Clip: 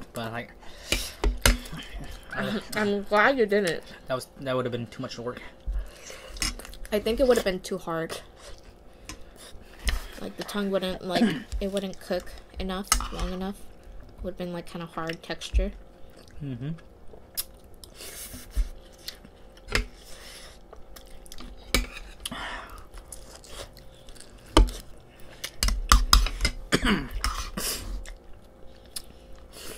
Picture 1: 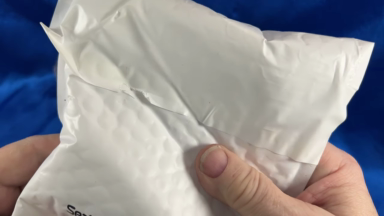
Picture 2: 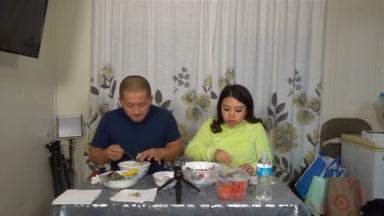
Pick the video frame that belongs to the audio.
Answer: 2